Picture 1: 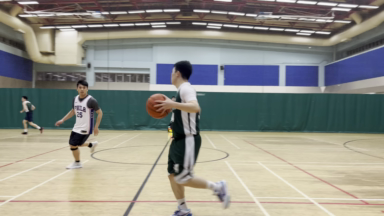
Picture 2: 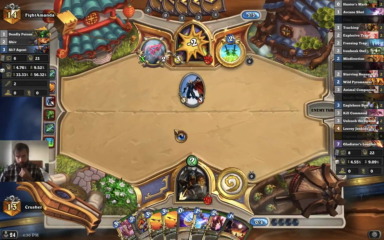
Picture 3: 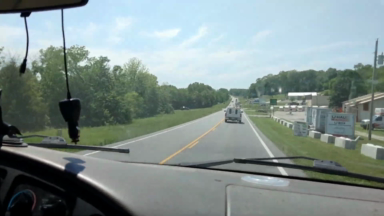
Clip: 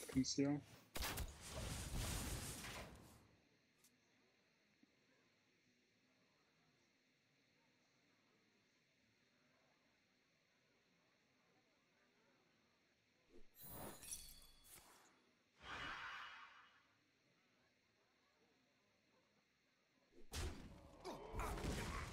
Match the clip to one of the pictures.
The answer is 2